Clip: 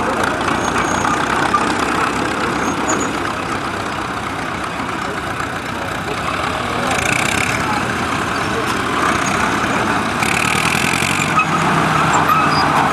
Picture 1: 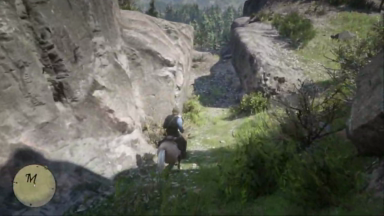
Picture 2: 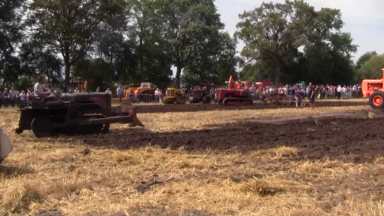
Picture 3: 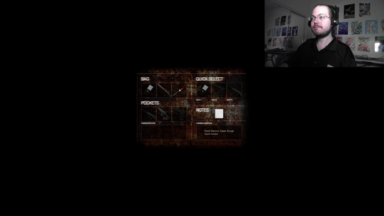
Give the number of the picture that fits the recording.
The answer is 2